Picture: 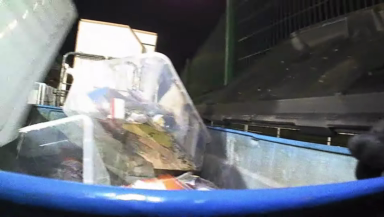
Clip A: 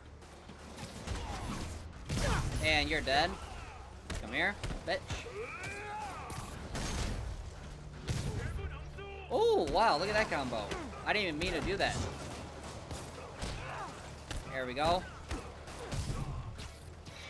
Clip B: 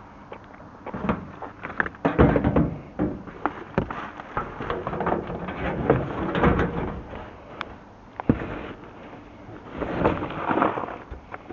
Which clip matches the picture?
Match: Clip B